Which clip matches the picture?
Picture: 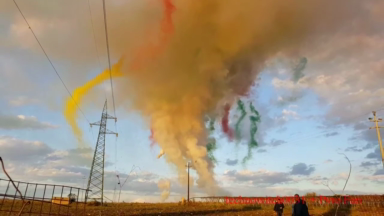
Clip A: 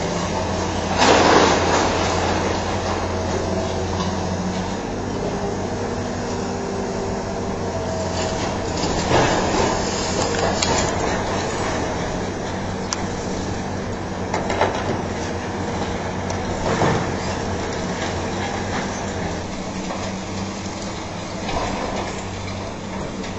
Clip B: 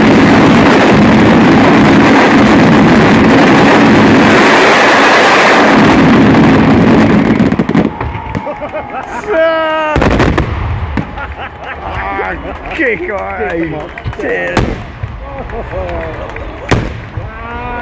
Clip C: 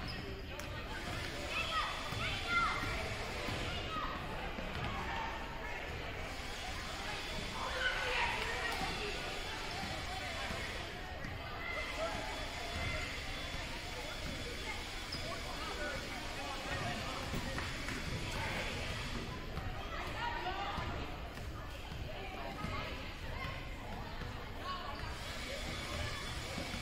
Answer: B